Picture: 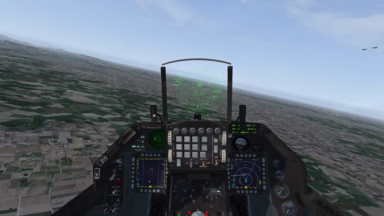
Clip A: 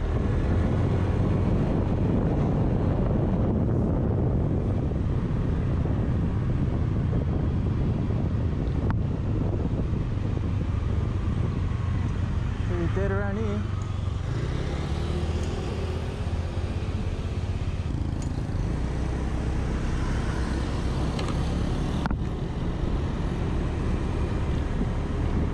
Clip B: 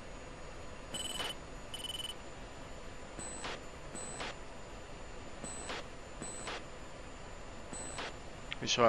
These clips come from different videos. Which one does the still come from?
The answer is B